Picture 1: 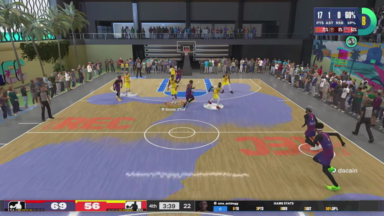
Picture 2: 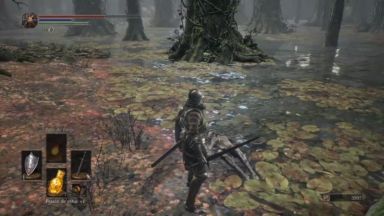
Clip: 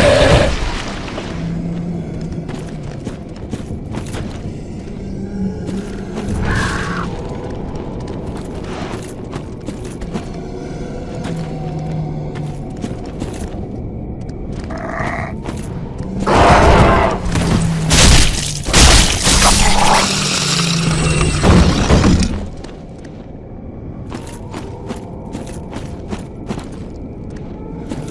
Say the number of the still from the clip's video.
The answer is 2